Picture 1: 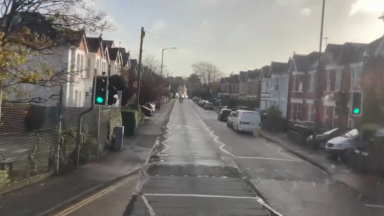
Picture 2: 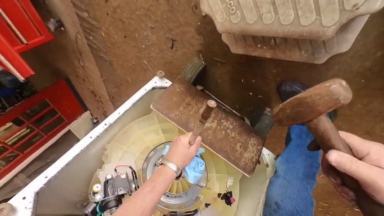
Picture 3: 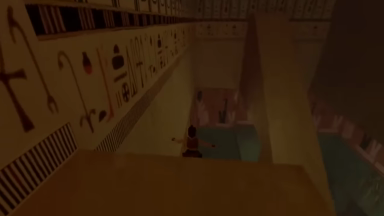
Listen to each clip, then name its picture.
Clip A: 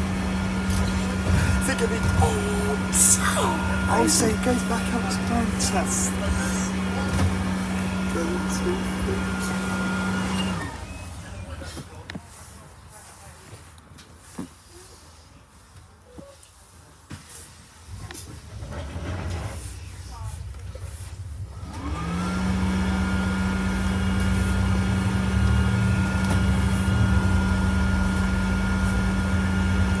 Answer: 1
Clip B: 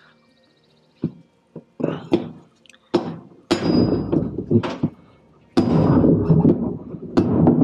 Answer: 2